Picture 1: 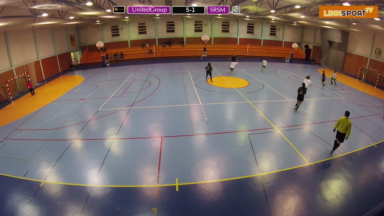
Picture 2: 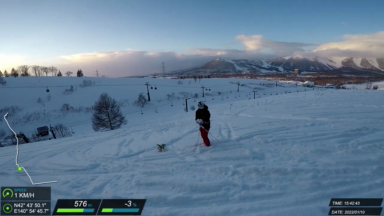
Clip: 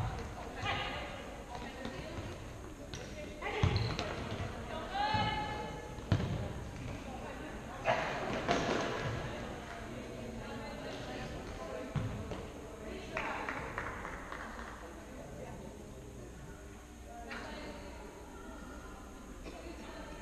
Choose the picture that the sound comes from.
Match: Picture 1